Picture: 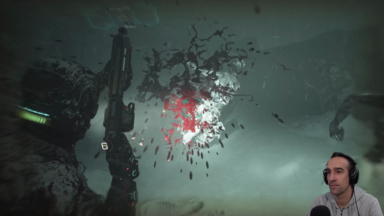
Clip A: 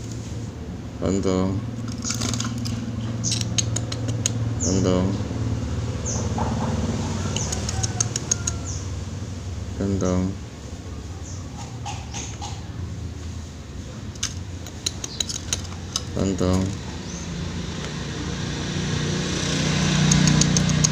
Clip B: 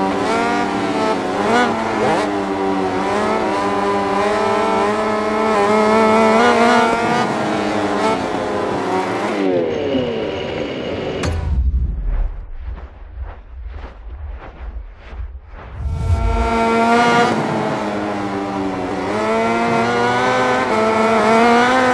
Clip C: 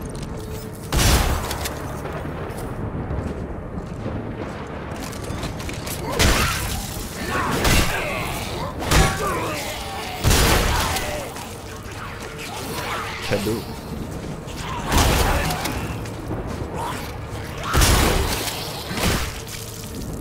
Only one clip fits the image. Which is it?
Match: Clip C